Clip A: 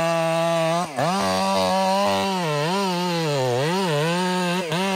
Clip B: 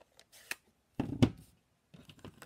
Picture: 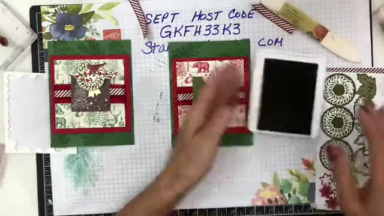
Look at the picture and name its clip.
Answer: B